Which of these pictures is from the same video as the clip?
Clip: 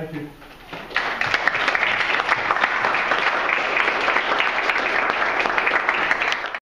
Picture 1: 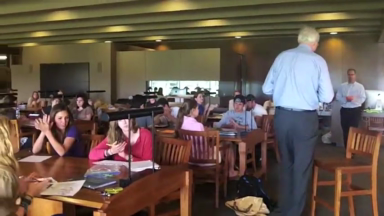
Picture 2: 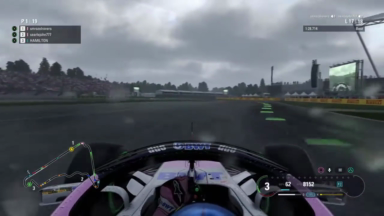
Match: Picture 1